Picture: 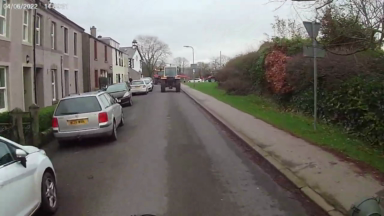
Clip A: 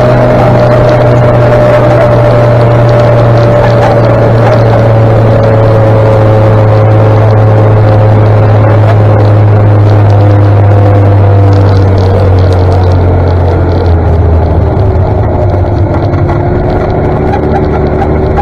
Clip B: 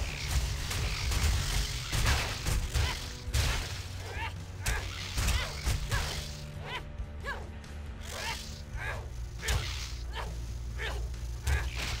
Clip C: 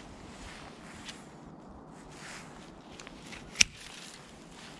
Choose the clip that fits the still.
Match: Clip A